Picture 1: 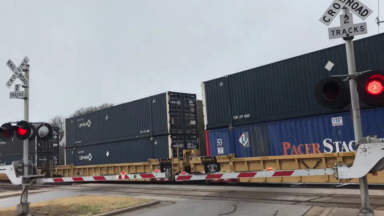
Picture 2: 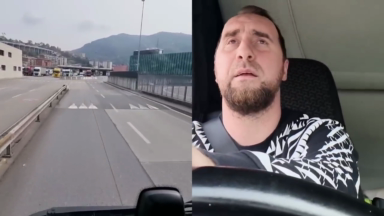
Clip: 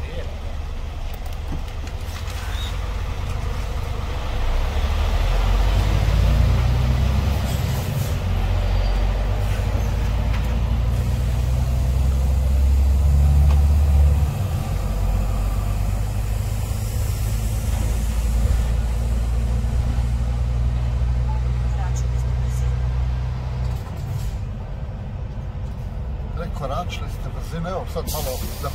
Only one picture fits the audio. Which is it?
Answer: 2